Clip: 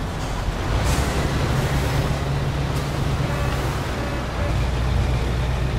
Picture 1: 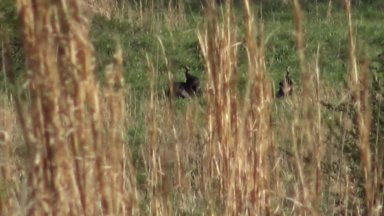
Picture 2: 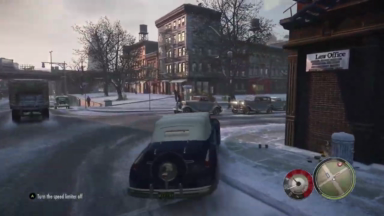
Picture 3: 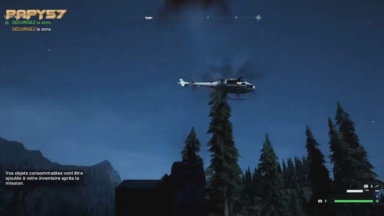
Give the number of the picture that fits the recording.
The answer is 2